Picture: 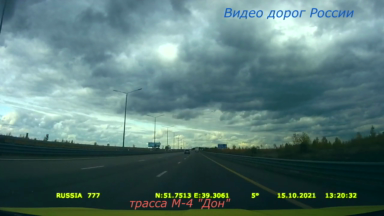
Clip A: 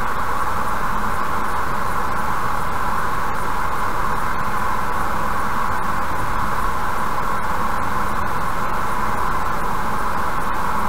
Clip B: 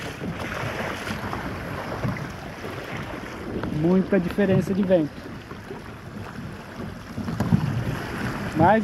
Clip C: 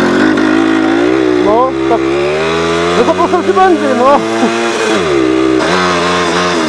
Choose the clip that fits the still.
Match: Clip A